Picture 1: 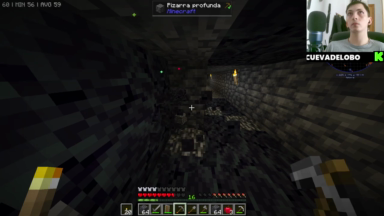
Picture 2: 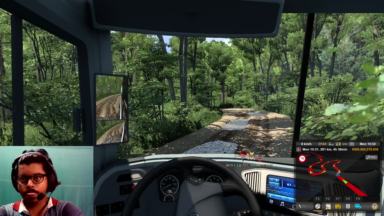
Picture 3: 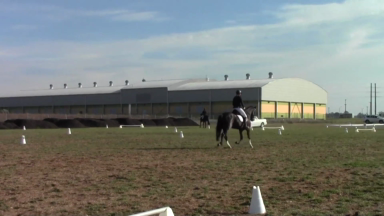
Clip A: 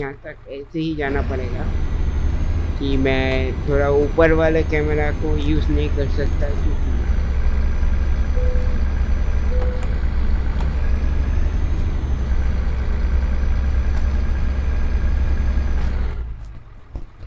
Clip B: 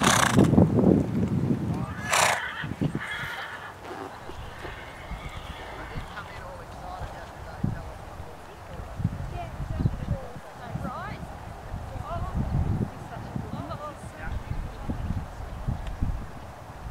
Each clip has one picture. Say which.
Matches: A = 2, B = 3